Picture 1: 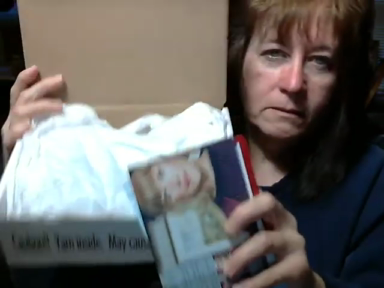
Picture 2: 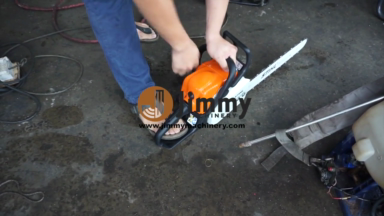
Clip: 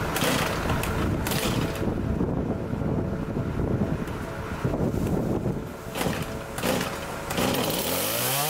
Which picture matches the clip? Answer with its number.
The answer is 2